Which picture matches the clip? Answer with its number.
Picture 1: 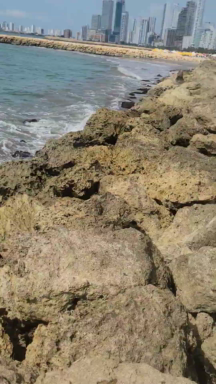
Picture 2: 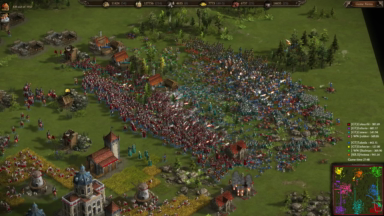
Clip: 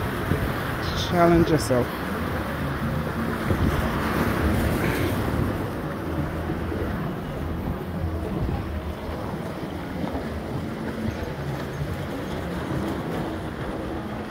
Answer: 1